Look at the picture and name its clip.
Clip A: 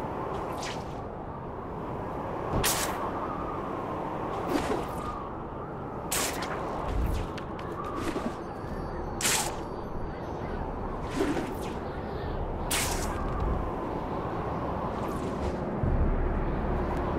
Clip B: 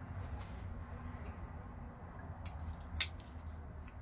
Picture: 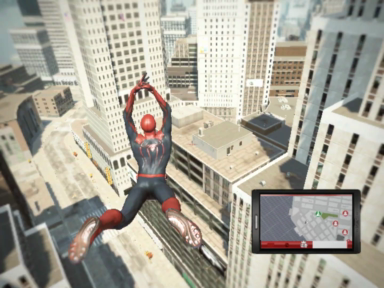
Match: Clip A